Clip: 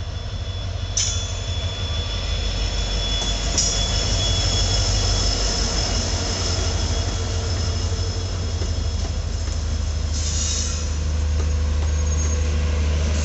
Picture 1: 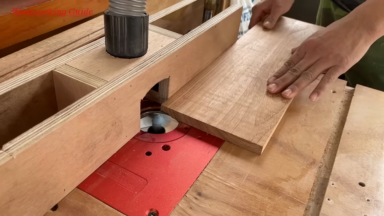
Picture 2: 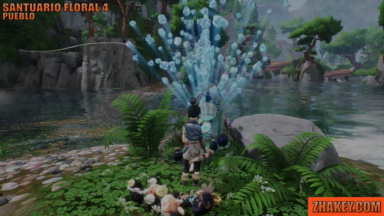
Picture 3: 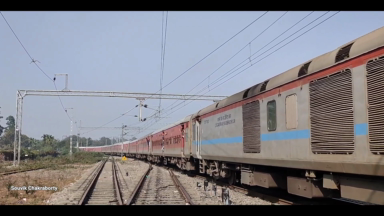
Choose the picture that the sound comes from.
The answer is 3